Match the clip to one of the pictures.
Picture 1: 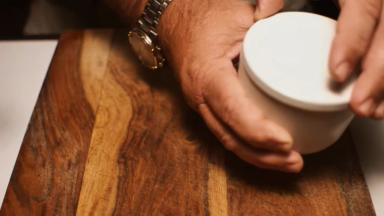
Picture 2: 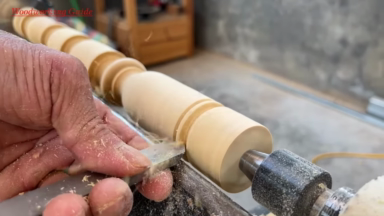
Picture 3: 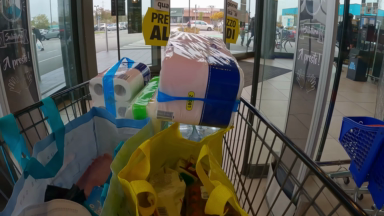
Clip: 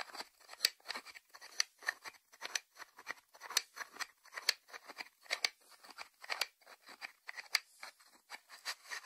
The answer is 1